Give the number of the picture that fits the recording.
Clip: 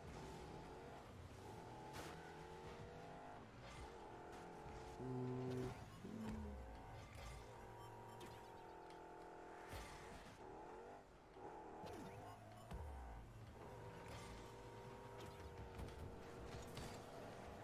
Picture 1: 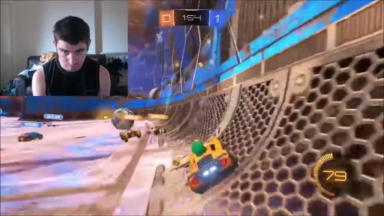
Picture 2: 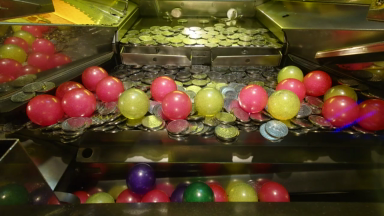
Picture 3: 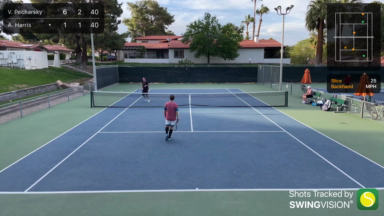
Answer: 1